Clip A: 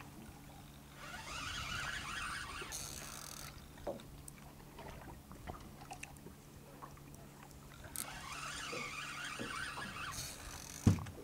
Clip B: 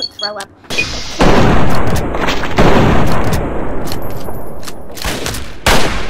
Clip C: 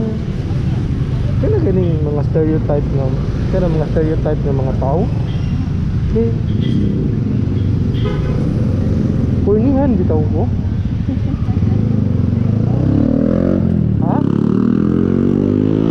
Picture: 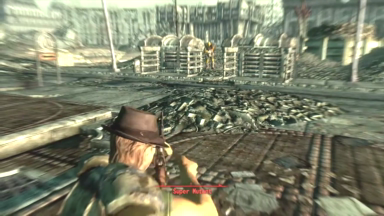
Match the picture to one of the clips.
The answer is B